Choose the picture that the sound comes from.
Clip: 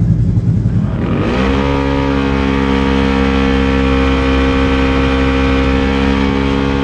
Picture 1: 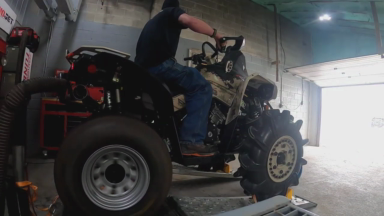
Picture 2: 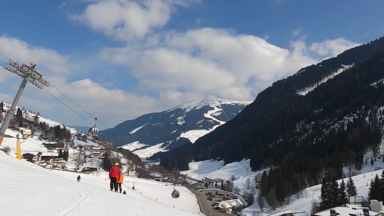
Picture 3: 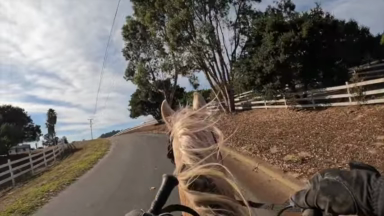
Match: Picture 1